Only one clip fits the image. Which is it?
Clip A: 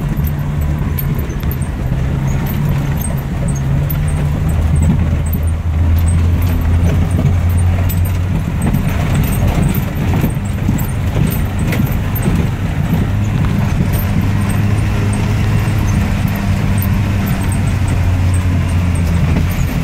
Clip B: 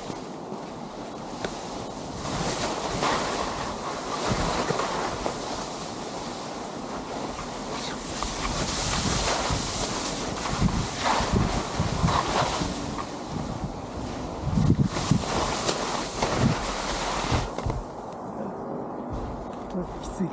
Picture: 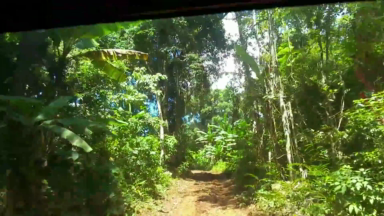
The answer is A